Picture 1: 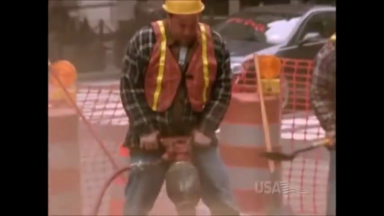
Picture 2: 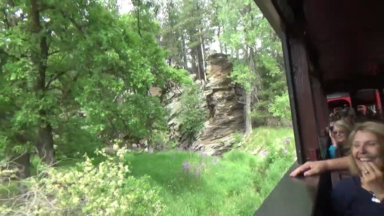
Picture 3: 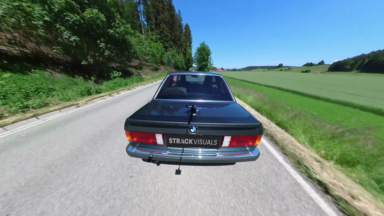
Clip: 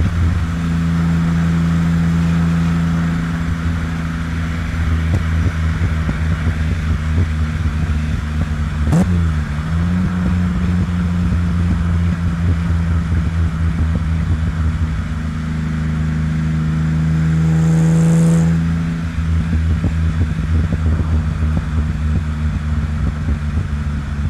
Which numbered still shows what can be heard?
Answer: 3